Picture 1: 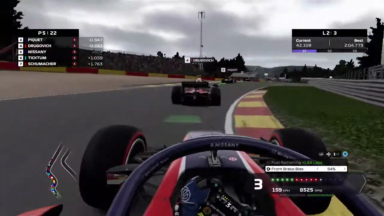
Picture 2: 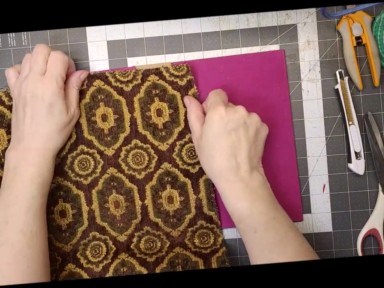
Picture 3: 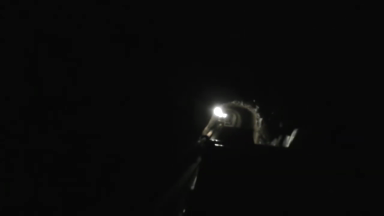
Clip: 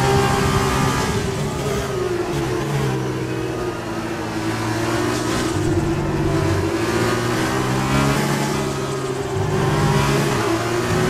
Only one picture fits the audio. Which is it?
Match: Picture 1